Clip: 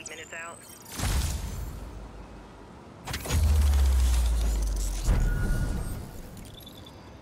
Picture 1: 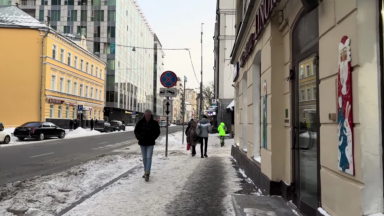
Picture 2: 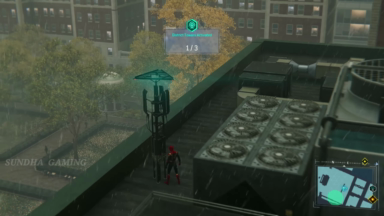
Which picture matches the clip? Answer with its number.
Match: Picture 2